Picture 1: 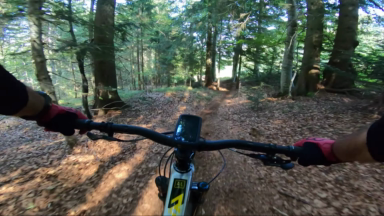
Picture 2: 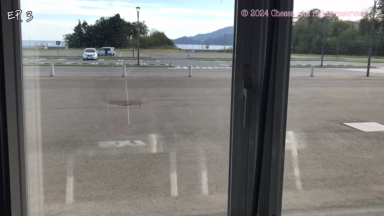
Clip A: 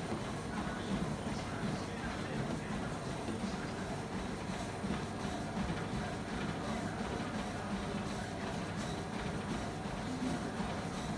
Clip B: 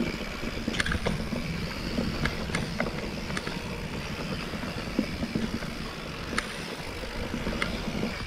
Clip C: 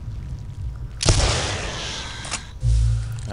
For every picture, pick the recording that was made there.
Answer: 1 B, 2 A